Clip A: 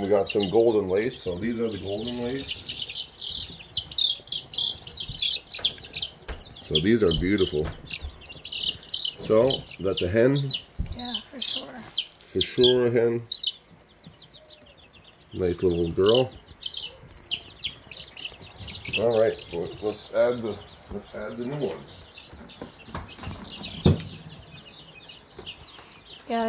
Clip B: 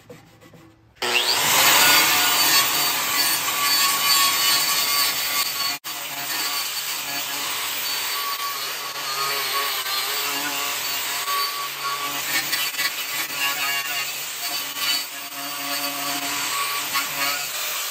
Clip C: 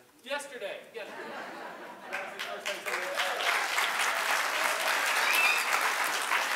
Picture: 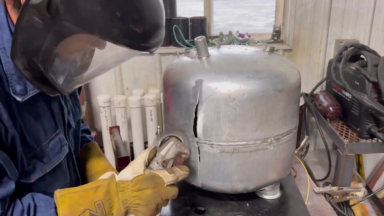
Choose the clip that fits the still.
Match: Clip B